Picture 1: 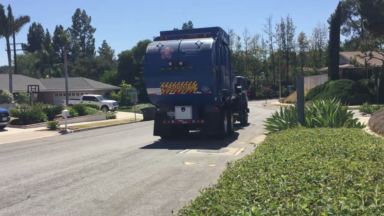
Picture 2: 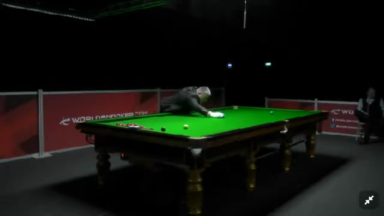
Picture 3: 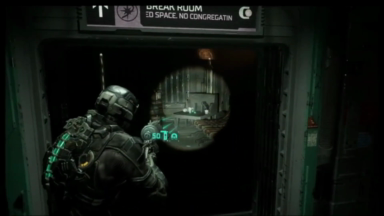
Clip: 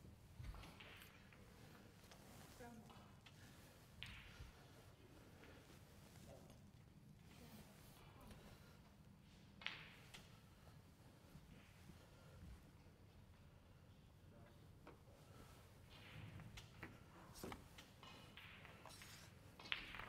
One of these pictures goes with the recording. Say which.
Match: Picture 2